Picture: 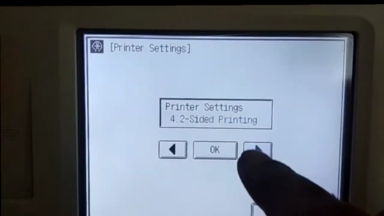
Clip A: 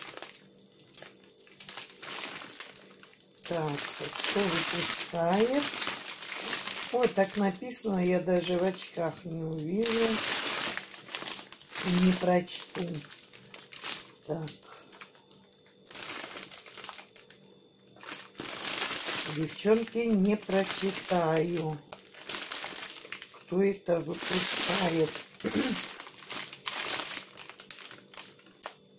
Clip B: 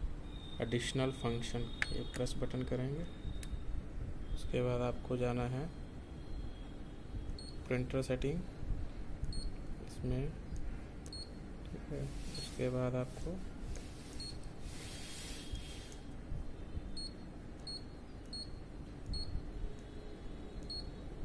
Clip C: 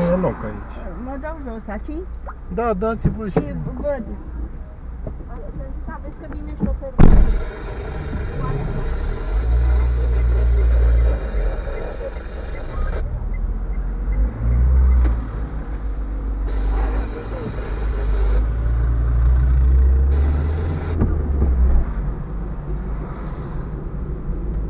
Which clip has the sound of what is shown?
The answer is B